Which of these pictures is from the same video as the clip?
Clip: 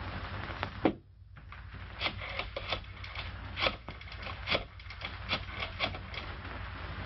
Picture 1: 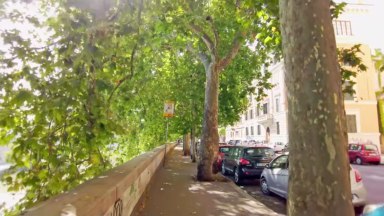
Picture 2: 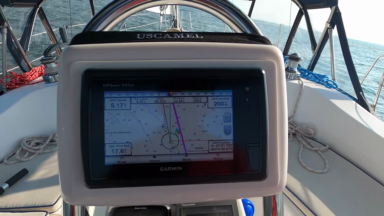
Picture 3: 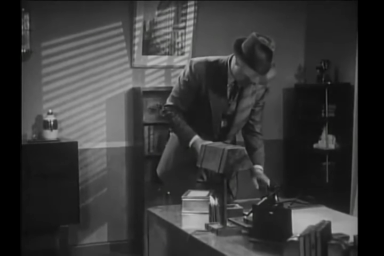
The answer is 3